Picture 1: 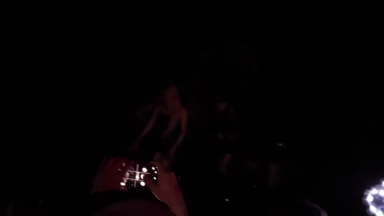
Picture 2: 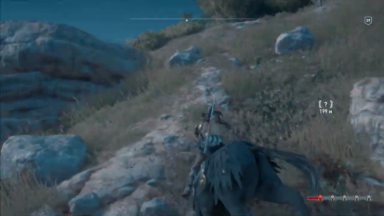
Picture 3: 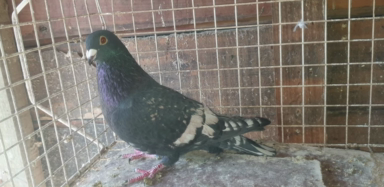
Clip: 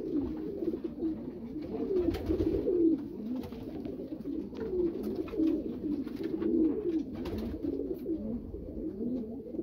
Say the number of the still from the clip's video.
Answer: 3